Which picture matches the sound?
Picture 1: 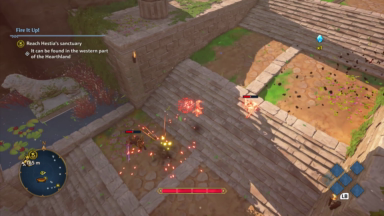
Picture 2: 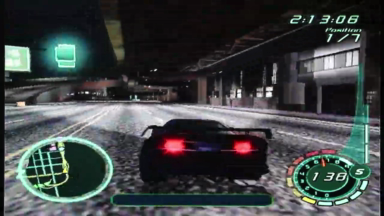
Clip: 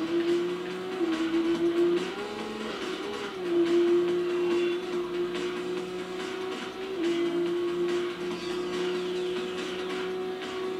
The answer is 2